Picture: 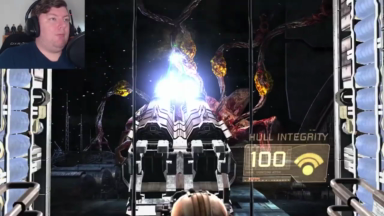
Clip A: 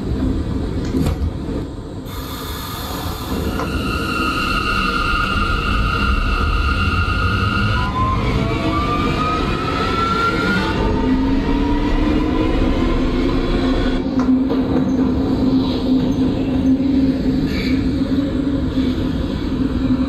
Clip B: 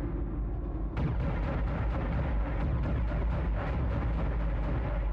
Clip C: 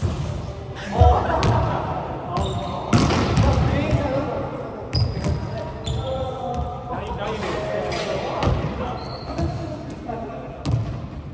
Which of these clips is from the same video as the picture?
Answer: B